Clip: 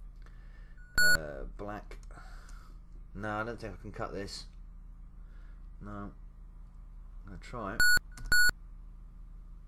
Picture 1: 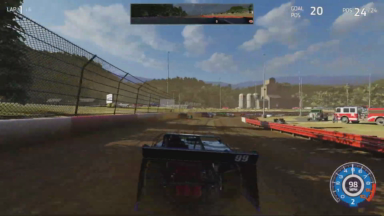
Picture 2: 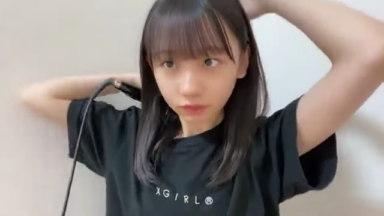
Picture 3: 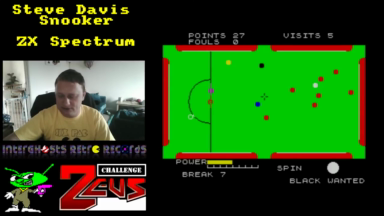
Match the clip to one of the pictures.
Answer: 3